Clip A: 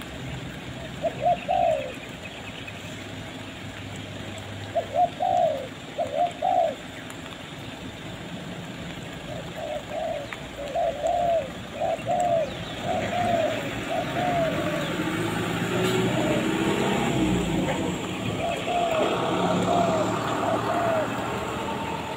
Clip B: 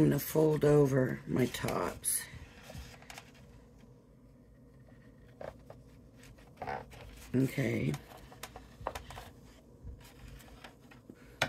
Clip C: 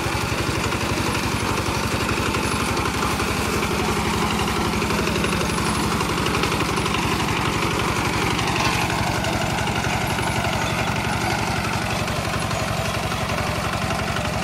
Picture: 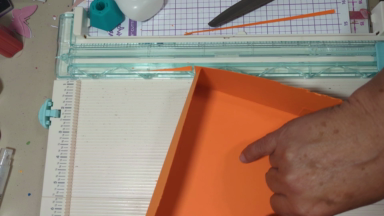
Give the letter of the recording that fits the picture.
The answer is B